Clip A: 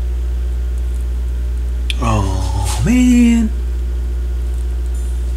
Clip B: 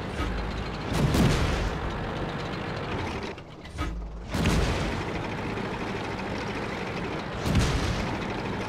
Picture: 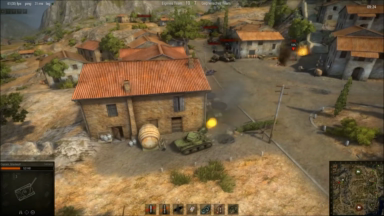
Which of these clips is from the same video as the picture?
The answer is B